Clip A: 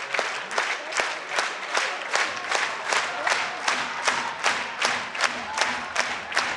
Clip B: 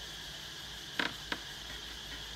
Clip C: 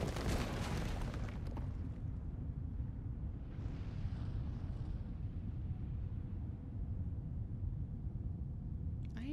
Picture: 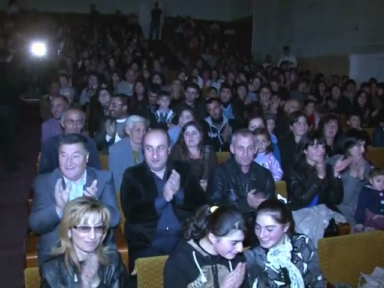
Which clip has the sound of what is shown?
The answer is A